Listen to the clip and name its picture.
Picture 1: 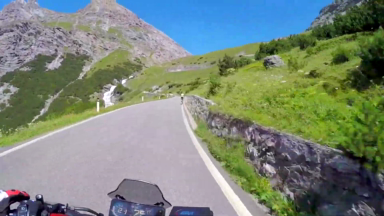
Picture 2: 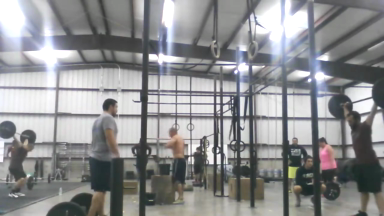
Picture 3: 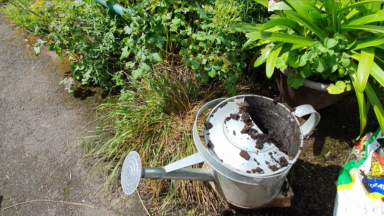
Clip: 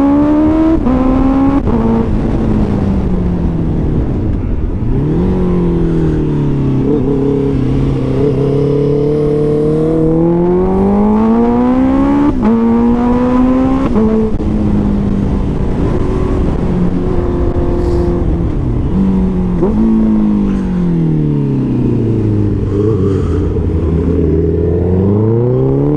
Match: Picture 1